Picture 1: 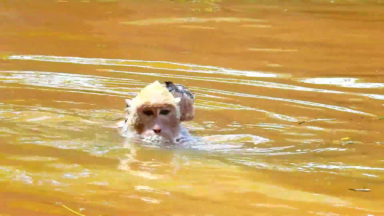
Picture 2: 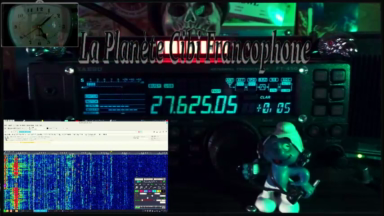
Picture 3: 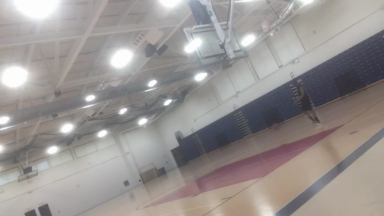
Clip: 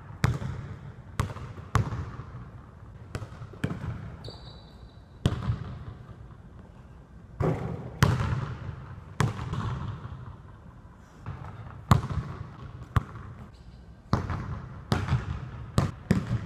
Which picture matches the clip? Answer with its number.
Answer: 3